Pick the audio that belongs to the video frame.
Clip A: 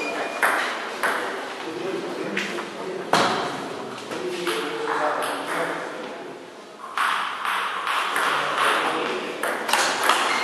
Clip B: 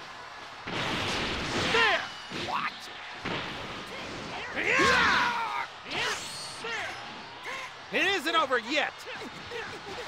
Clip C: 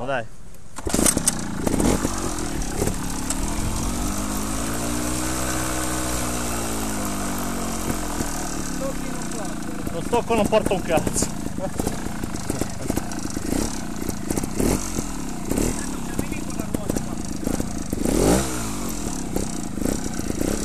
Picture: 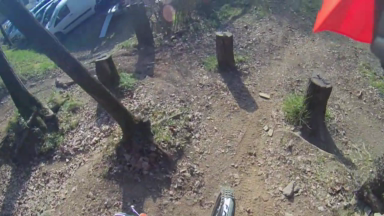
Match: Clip C